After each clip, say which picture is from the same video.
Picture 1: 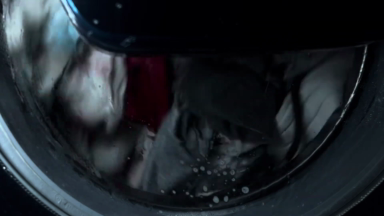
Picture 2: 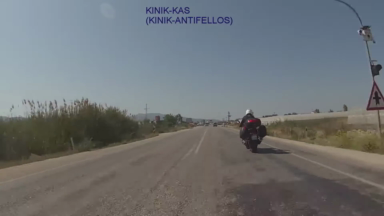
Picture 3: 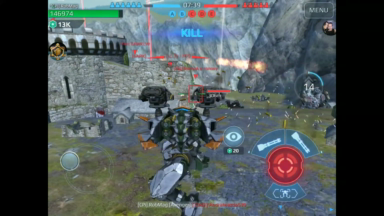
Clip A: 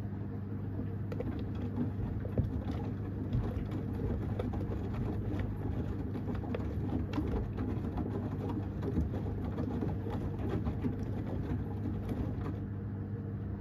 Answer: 1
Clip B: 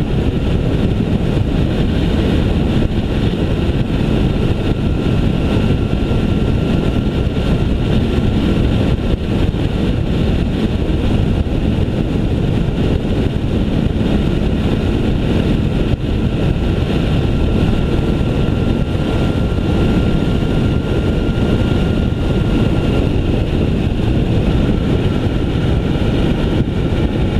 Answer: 2